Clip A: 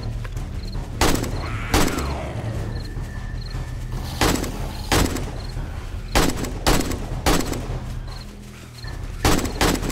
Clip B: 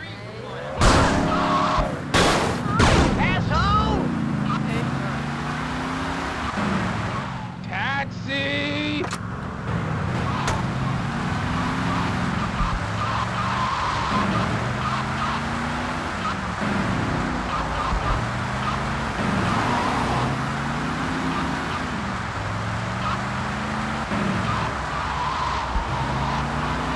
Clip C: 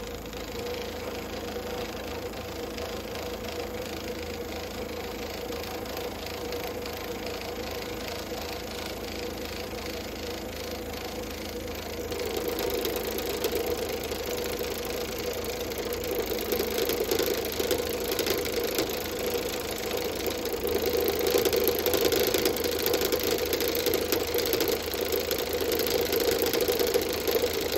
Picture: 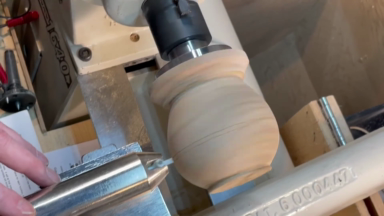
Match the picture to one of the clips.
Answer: C